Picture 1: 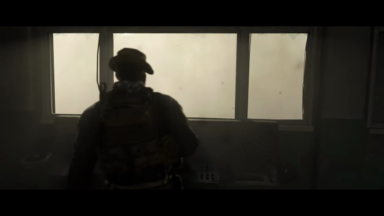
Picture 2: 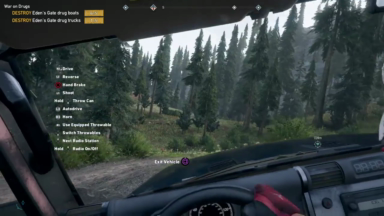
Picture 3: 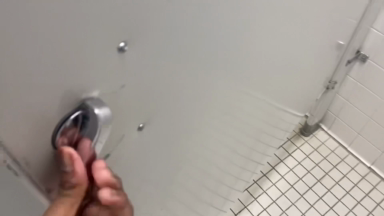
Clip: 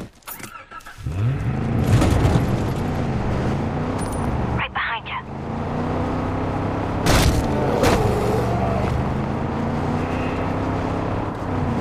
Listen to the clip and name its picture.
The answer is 2